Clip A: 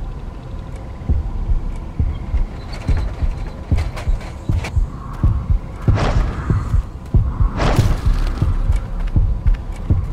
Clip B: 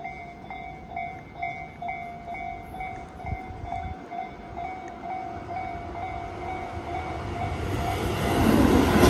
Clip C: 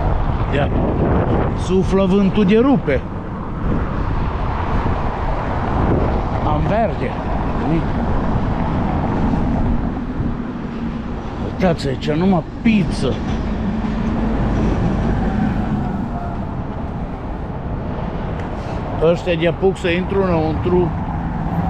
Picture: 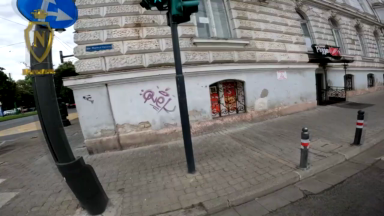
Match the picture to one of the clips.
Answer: C